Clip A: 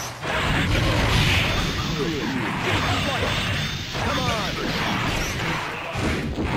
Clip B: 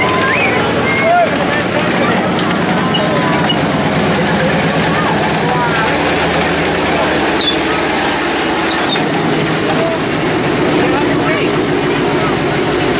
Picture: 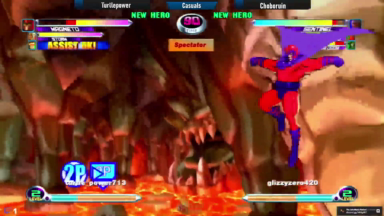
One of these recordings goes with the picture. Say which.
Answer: A